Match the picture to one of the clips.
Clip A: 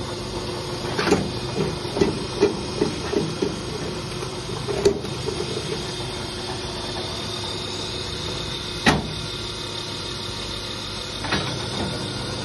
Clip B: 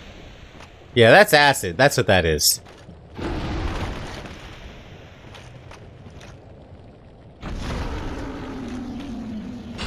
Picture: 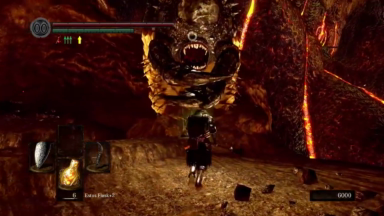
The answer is B